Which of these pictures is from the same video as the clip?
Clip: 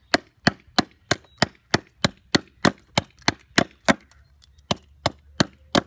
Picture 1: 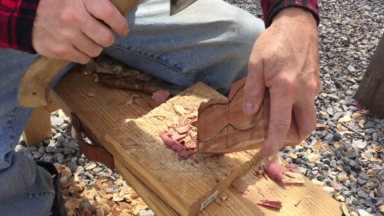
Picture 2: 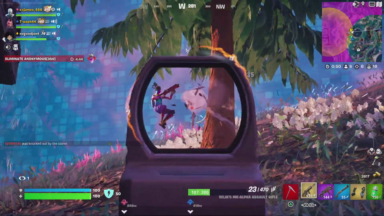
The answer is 1